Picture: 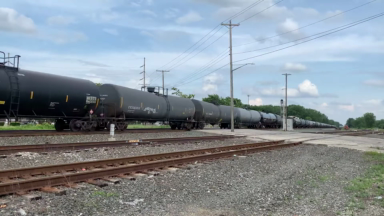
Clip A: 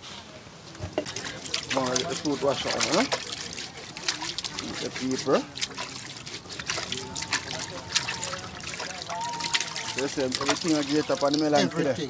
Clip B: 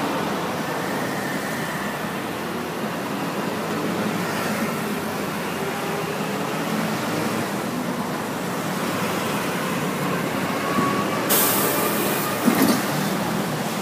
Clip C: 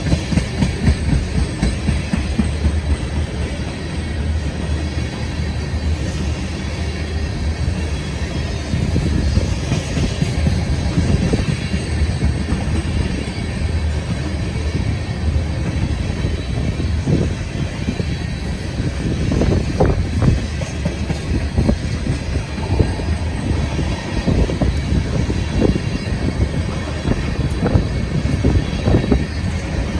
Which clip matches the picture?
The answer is C